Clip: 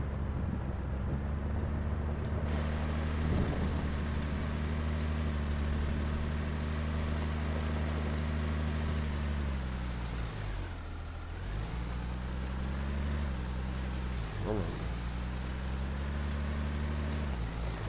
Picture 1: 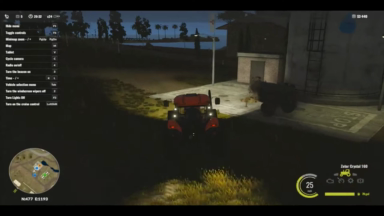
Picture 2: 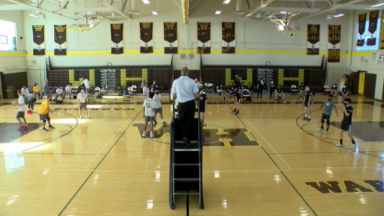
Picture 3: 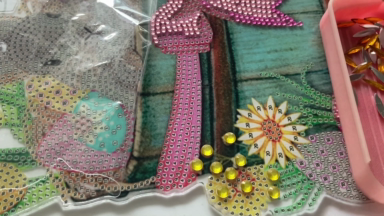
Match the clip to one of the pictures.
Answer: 1